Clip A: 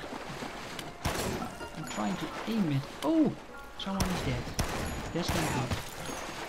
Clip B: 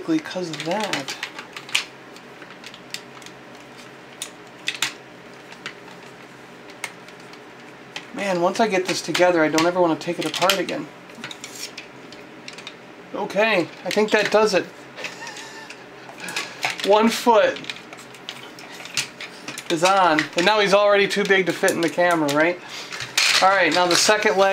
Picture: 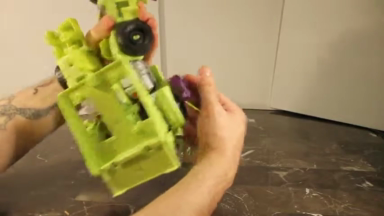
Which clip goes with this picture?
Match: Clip B